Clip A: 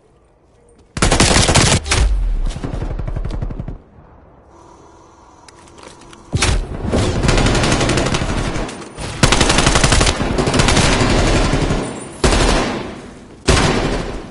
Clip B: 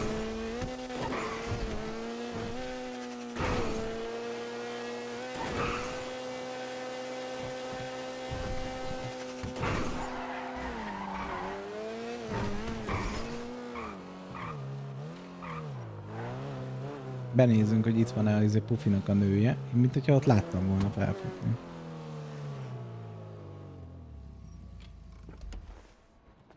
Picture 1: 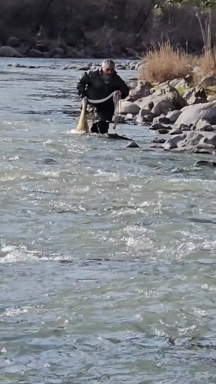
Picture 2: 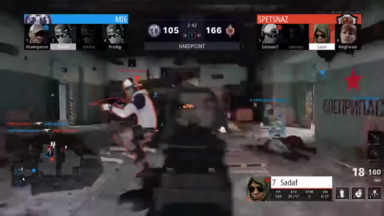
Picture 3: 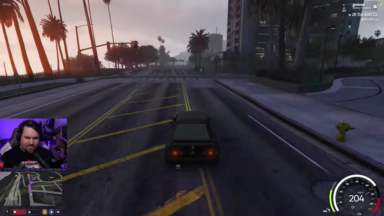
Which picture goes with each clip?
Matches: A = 2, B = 3